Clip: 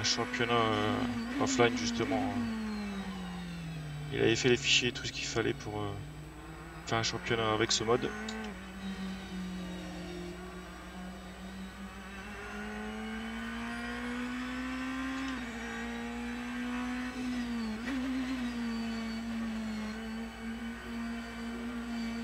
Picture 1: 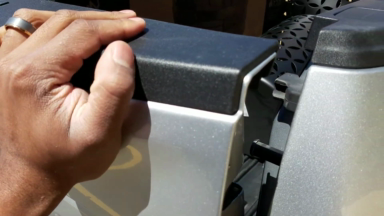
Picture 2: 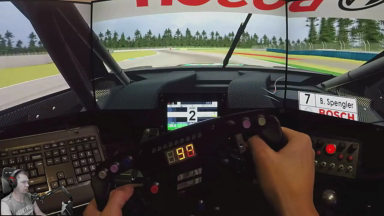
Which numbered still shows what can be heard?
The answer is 2